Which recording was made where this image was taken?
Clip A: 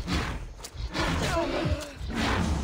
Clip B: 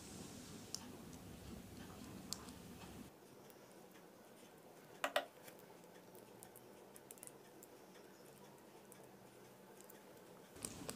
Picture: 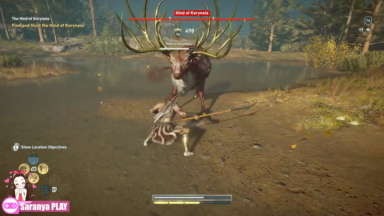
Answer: A